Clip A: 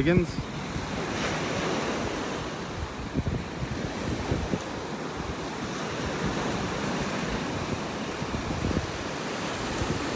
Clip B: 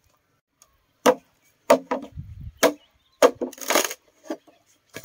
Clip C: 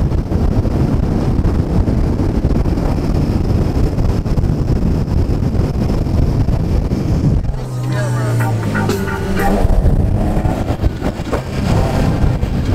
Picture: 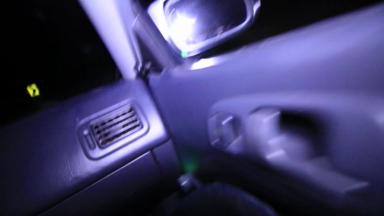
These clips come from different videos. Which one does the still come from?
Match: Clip C